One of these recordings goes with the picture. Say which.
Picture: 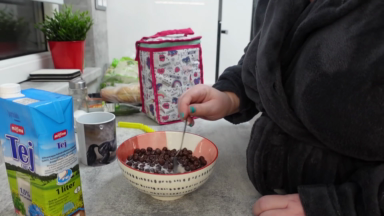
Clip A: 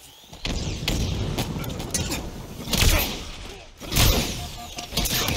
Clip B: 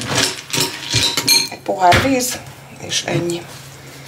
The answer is B